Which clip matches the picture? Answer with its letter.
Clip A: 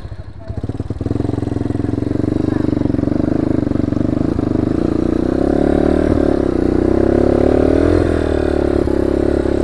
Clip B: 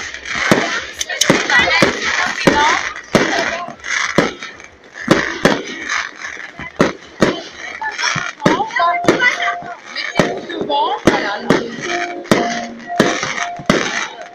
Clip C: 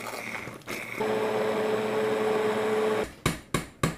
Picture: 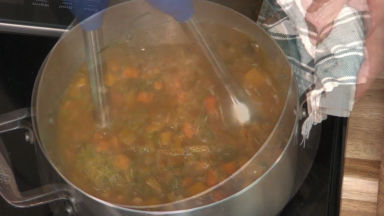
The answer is C